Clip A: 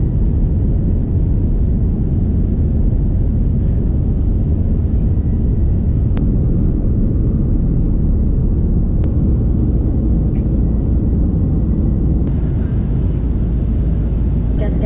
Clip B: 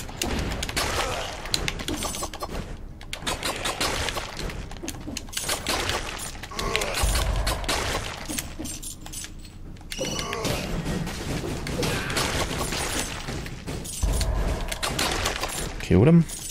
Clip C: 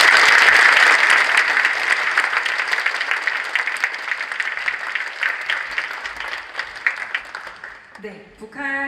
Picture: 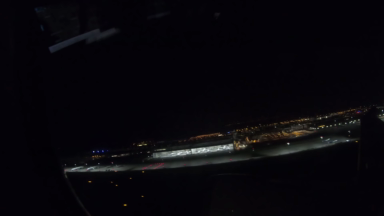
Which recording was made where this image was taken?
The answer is A